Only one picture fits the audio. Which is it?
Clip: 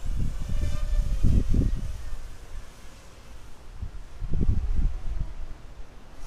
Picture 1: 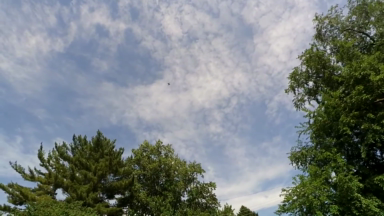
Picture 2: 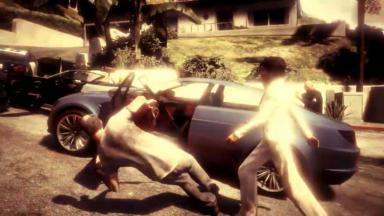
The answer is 1